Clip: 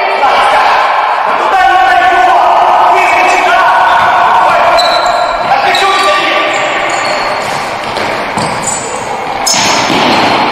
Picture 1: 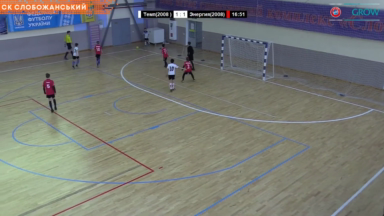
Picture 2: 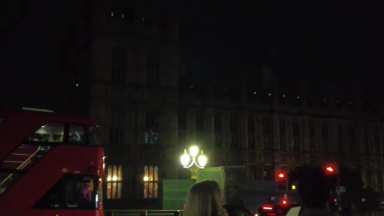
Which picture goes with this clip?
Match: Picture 1